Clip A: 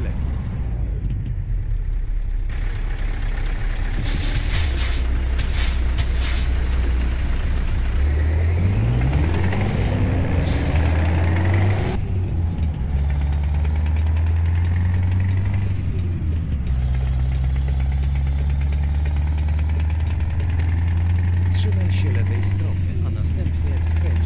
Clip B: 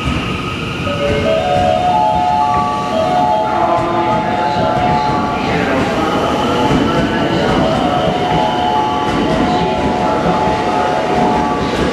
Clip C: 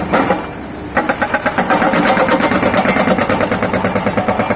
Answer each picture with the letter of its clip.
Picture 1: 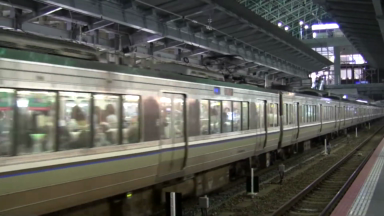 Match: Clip B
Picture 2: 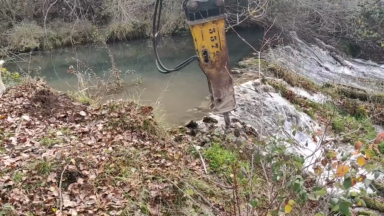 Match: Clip C